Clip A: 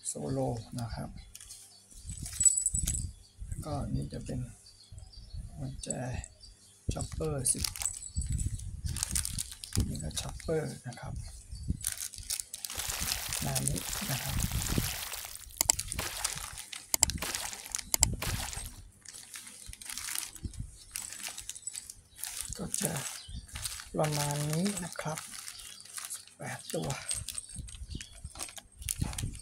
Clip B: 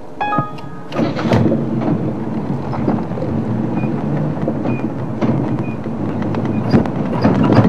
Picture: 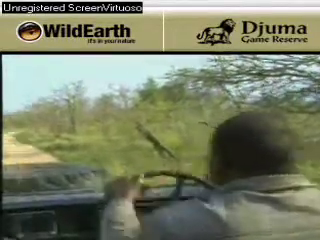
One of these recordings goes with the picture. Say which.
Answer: B